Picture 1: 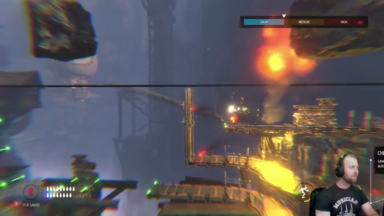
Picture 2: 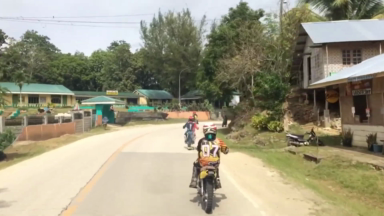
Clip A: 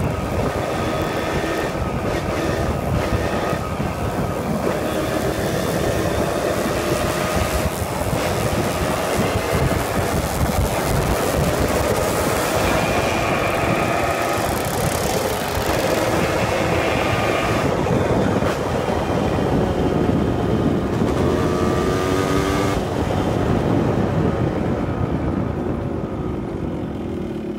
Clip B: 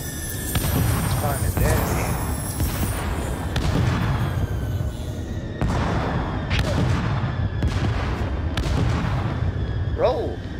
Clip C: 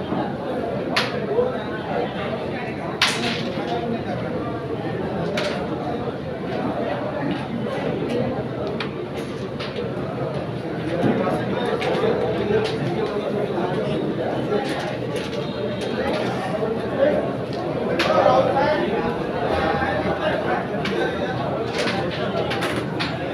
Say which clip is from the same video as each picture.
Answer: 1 B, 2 A